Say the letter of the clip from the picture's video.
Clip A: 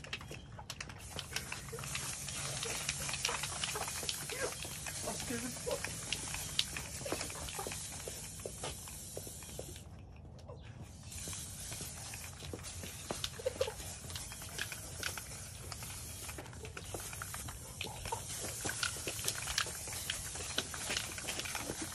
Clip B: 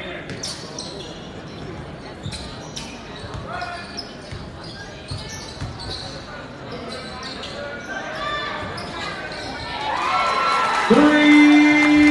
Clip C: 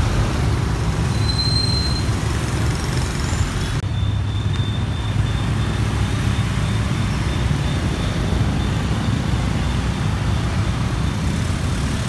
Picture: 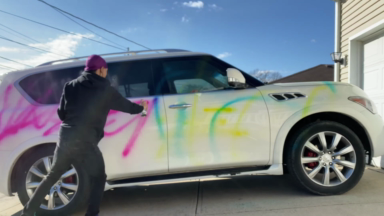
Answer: A